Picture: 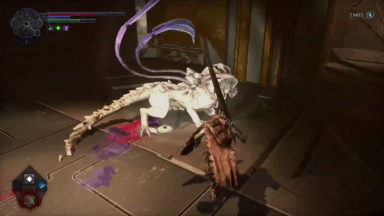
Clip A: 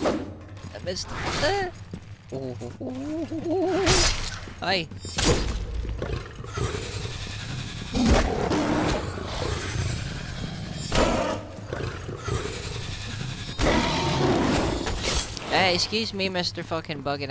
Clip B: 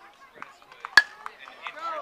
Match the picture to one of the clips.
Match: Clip A